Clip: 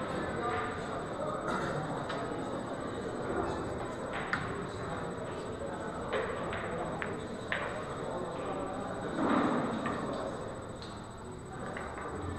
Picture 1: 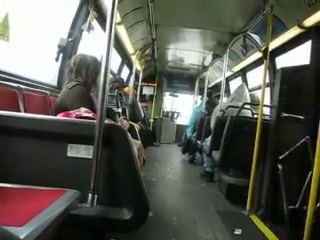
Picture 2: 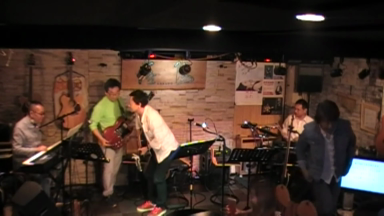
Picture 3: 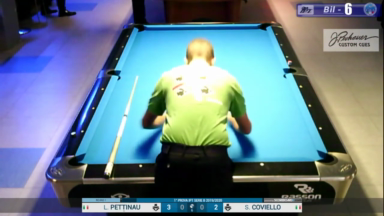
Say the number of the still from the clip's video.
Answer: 3